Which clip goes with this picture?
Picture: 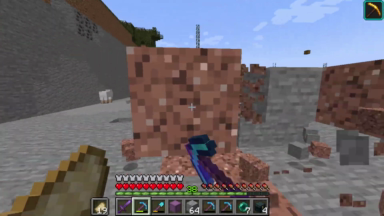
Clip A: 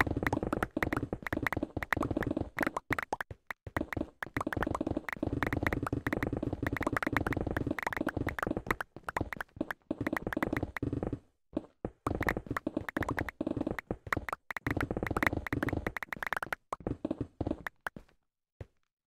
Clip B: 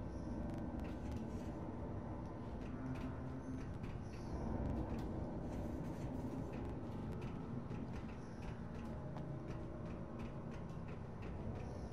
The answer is A